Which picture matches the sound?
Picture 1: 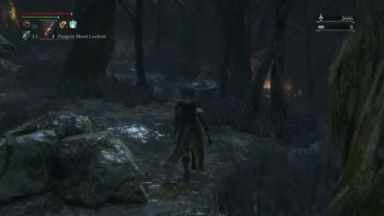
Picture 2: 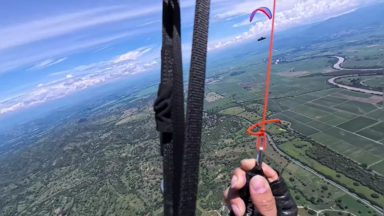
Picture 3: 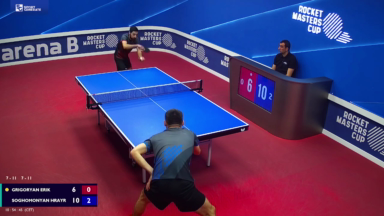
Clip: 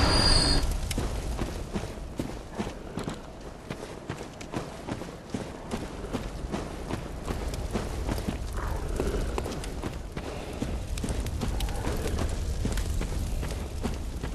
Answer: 1